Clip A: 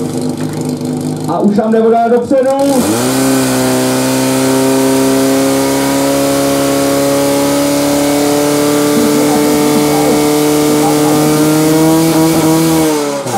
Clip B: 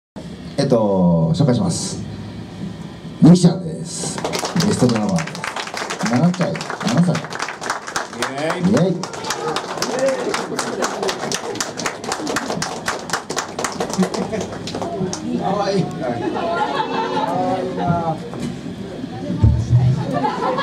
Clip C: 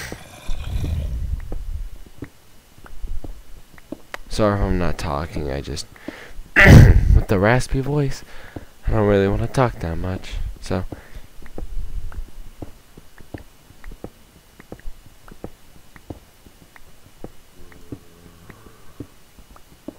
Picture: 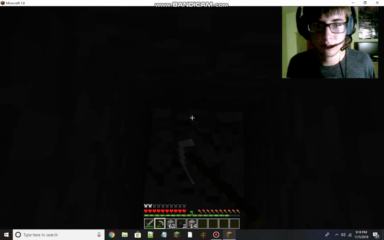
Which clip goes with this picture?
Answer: C